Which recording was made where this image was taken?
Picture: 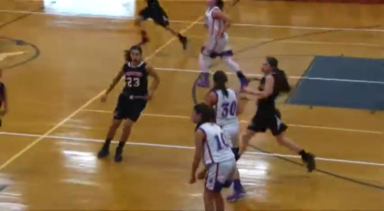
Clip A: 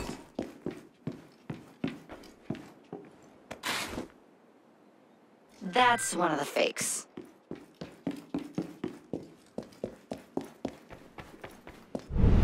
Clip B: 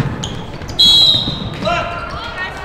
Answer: B